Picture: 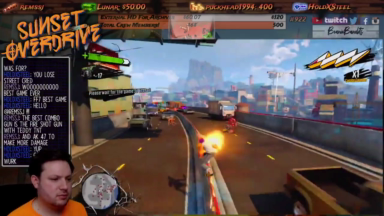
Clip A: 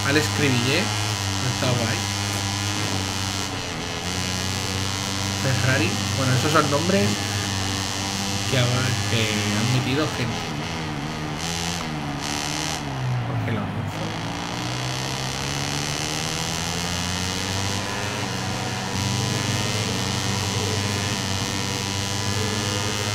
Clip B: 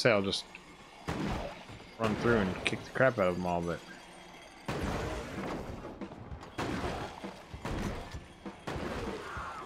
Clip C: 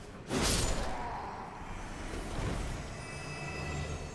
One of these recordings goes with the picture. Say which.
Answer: B